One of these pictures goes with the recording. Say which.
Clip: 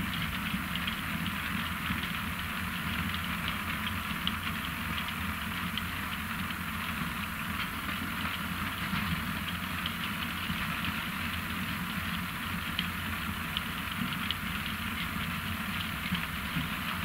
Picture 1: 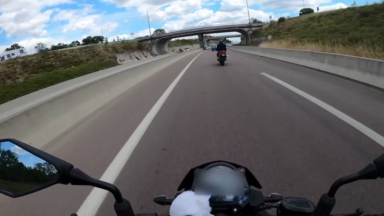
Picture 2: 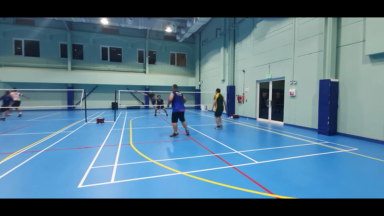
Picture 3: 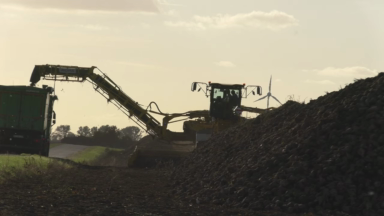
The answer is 3